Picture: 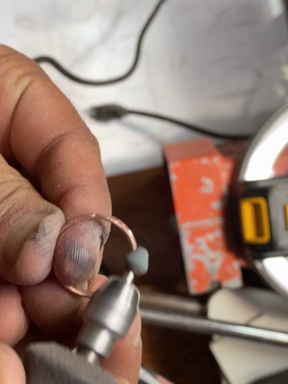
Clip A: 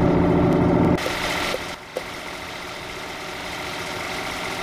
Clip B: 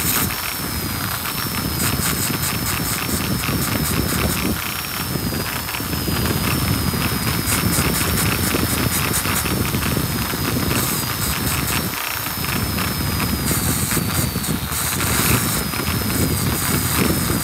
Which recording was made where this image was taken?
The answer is B